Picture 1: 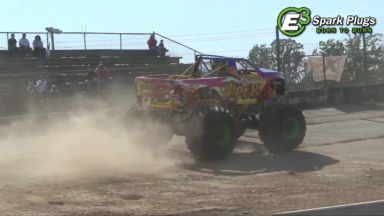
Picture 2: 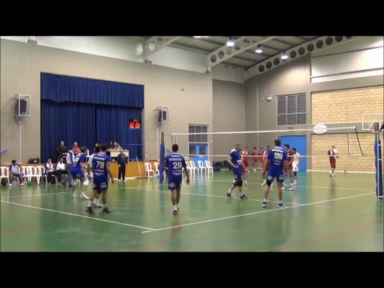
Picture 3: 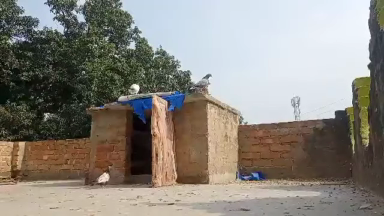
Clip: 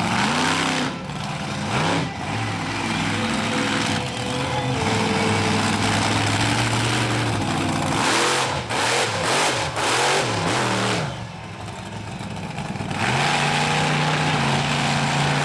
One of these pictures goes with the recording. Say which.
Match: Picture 1